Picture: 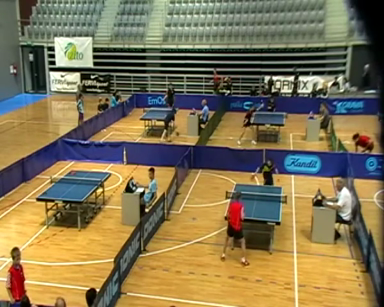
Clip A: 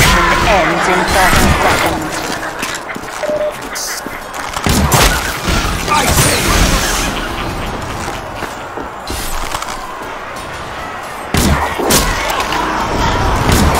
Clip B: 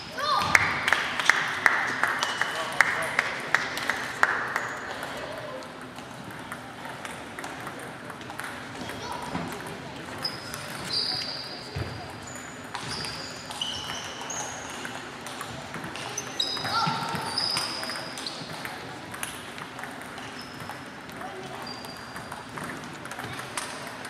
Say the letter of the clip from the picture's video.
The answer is B